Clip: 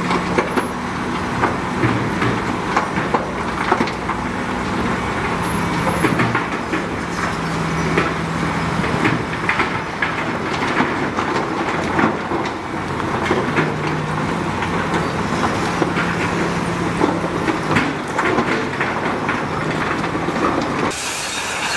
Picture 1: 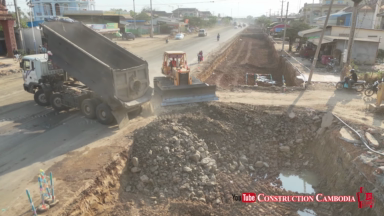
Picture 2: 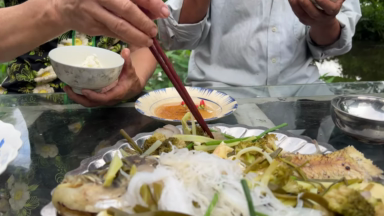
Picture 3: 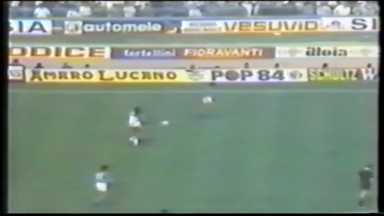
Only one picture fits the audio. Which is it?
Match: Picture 1